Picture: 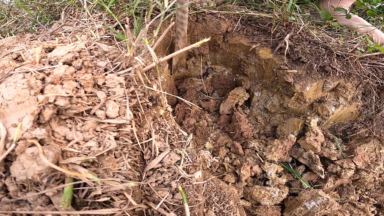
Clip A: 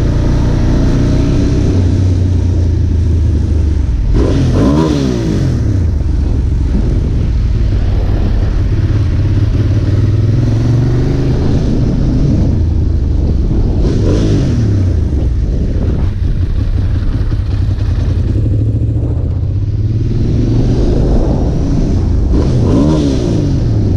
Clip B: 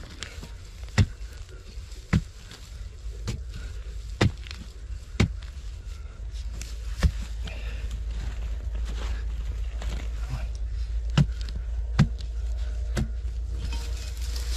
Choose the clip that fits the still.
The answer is B